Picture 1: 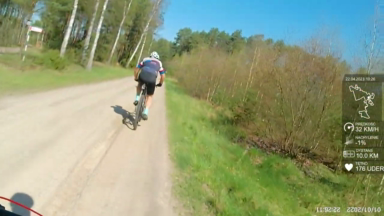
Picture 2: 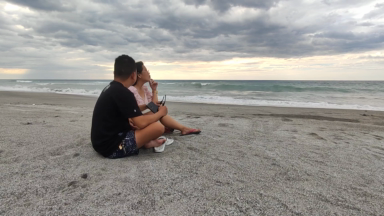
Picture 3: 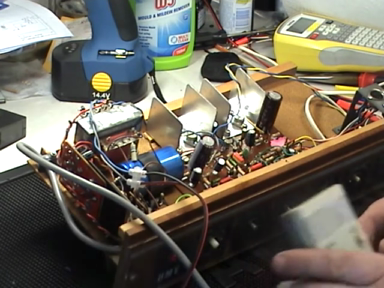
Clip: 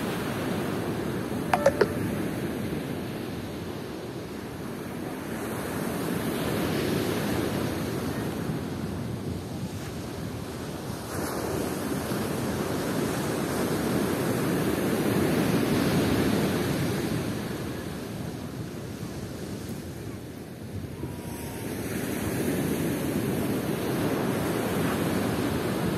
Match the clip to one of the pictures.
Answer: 2